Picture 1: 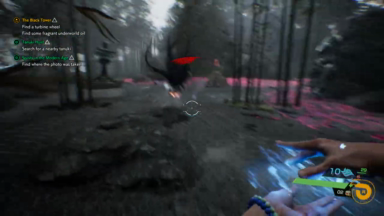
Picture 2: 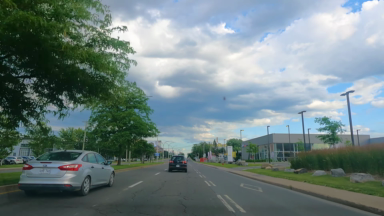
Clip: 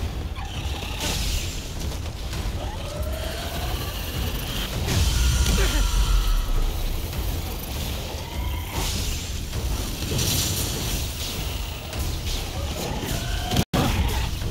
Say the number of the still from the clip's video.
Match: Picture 1